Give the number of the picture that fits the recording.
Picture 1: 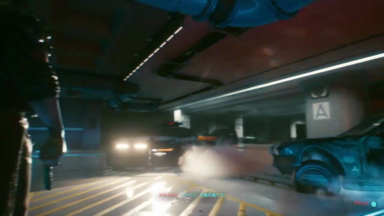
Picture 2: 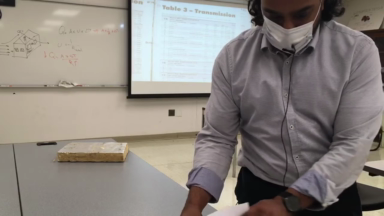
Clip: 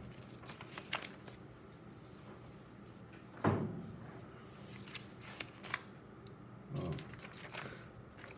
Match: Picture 2